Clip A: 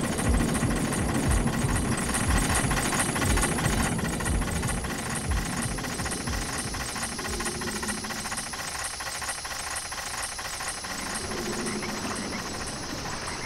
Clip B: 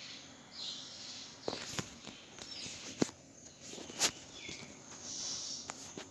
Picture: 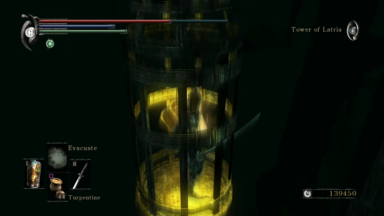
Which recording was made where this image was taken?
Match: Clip A